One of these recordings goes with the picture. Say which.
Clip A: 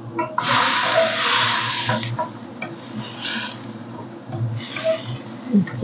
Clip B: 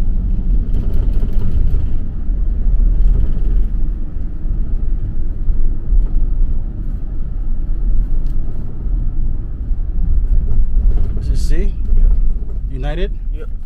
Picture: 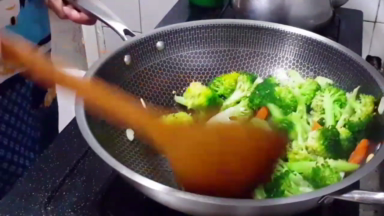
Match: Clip A